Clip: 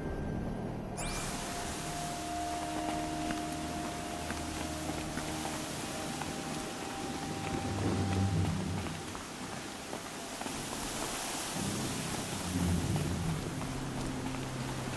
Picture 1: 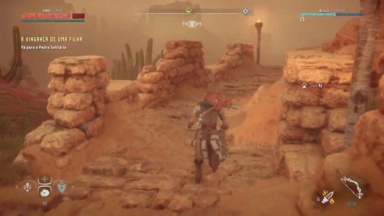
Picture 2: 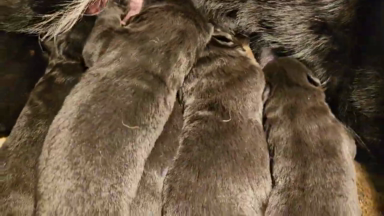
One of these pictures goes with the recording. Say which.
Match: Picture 1